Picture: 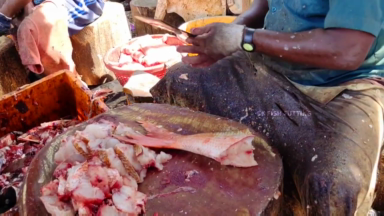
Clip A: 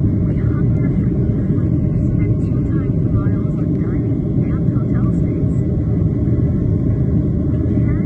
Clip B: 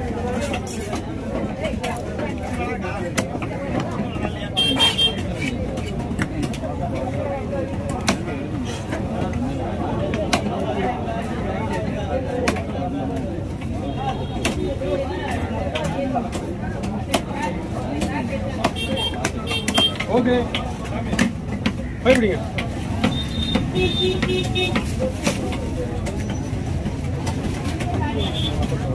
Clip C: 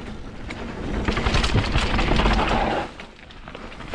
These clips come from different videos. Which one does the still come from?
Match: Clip B